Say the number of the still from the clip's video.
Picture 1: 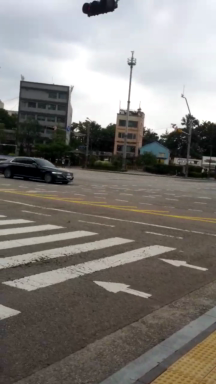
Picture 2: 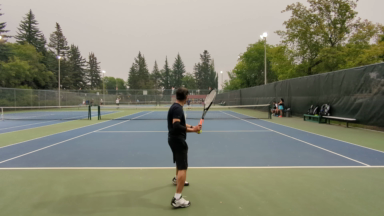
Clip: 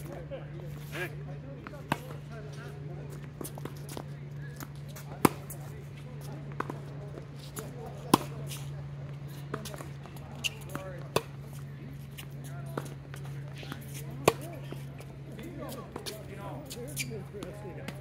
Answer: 2